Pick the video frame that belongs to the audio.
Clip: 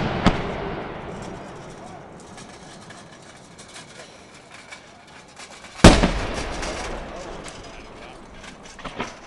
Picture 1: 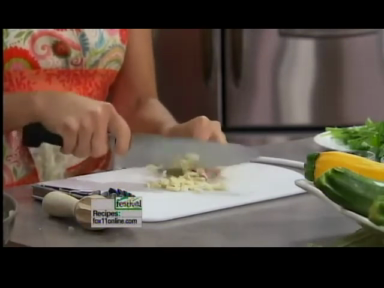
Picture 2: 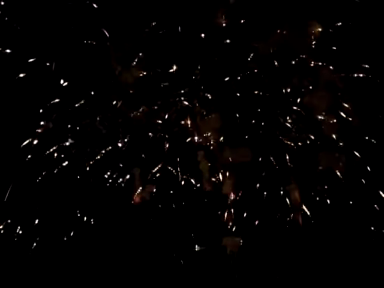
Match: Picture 2